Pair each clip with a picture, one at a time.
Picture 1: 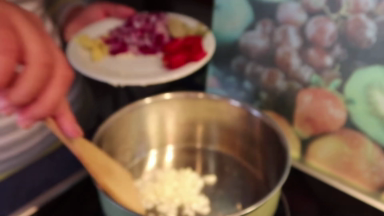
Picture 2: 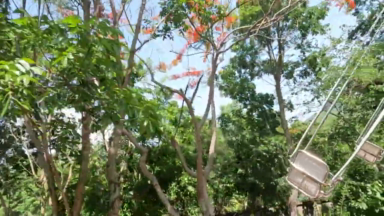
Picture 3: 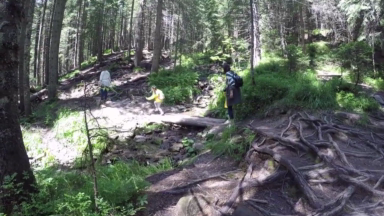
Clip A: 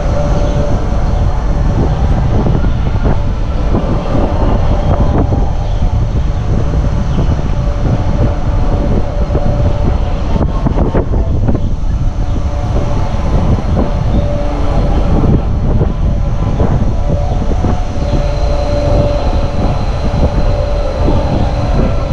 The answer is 2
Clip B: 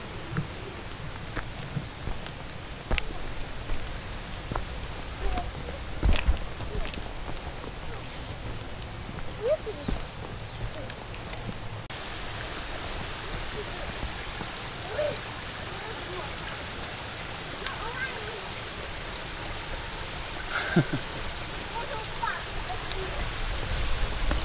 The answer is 3